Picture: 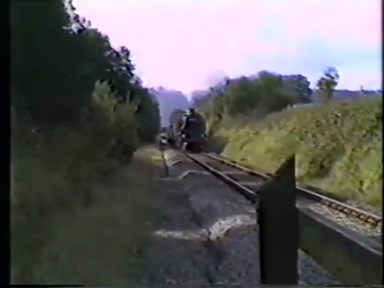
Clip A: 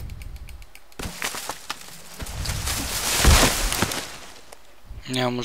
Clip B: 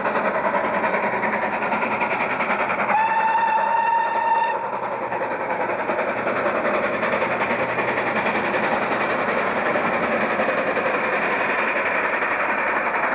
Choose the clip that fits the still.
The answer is B